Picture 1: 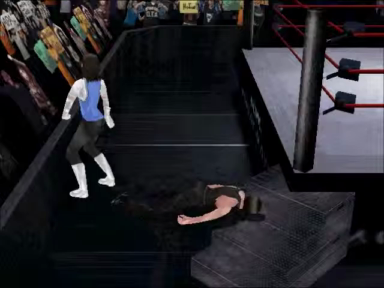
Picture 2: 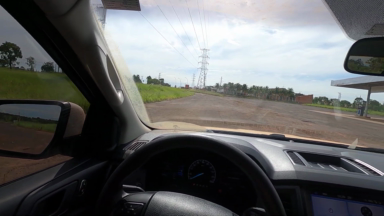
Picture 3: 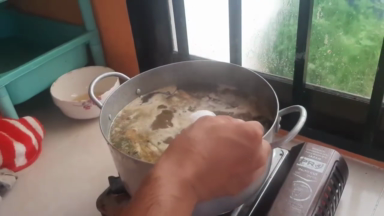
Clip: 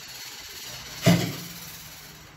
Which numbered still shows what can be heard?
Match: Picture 3